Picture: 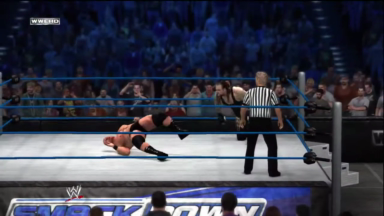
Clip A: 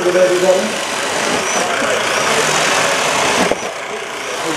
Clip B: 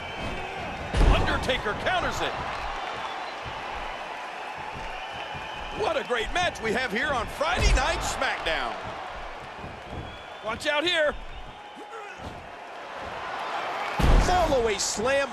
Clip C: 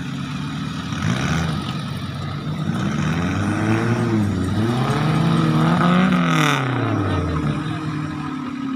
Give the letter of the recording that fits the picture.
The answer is B